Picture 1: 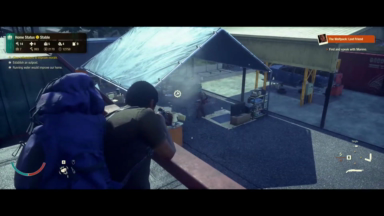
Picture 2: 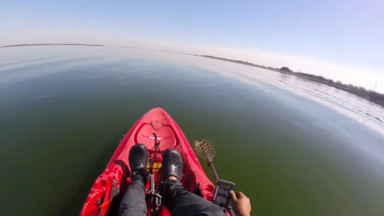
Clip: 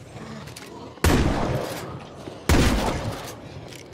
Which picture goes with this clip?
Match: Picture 1